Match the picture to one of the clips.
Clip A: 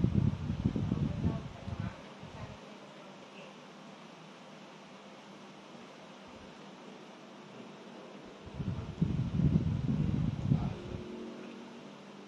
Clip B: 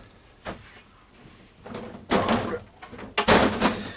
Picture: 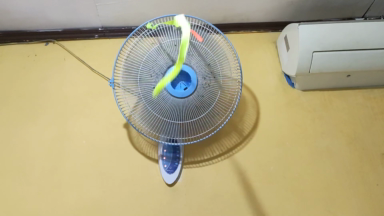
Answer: A